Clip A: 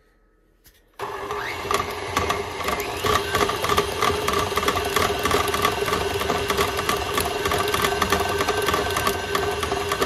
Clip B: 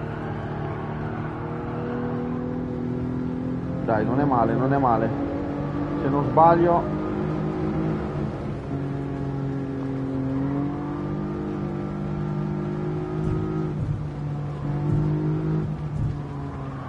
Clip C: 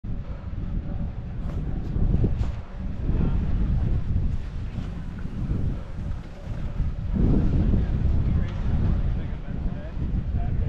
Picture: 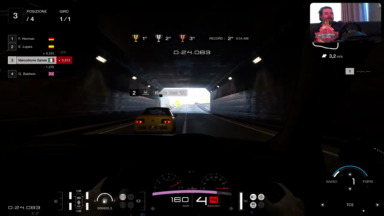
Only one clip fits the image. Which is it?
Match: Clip B